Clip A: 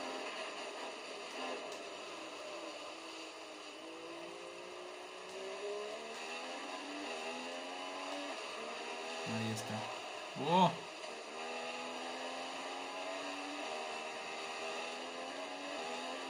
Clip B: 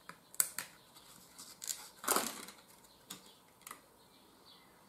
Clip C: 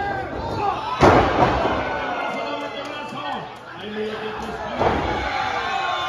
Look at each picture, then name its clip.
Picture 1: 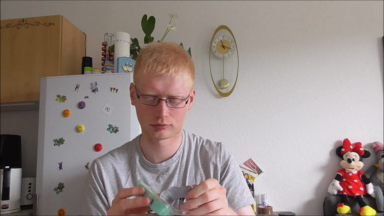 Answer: B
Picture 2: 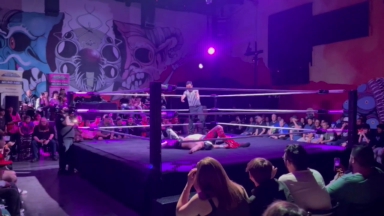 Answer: C